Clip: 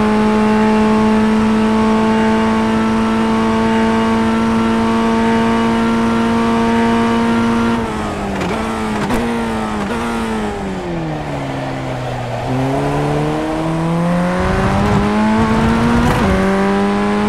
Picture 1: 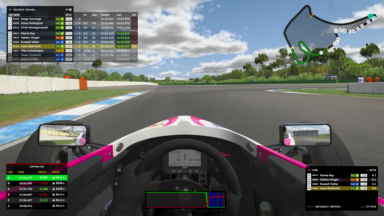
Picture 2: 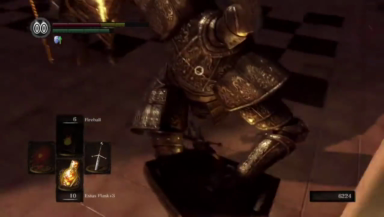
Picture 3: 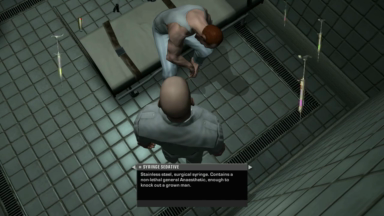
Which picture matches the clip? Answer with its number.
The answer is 1